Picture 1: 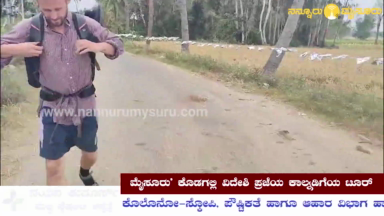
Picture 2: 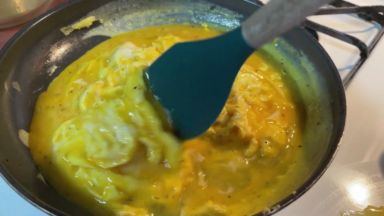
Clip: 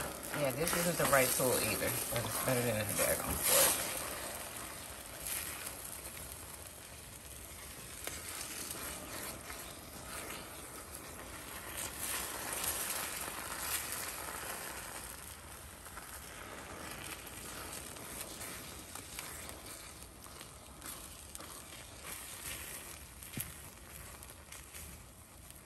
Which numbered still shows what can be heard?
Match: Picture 2